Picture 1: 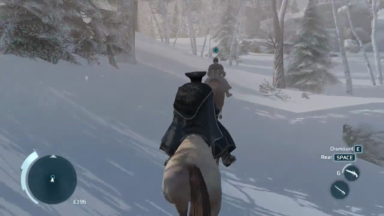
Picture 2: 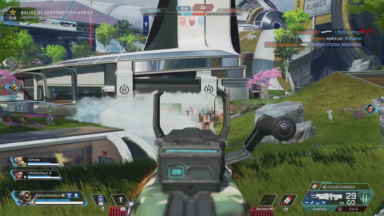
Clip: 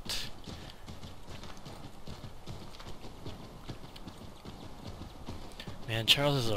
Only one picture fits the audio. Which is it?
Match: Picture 1